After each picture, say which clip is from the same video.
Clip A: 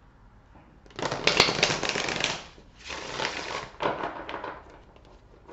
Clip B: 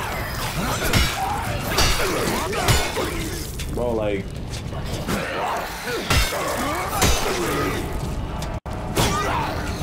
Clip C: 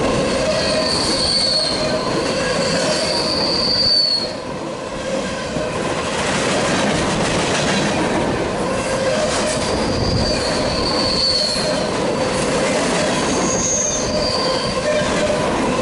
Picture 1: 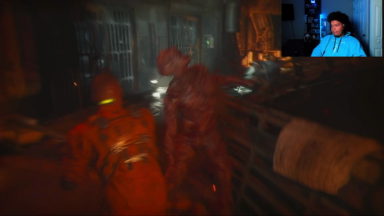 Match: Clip B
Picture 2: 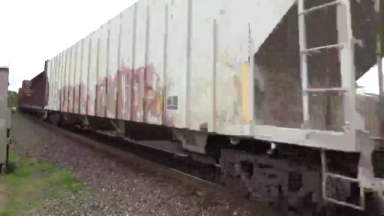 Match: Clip C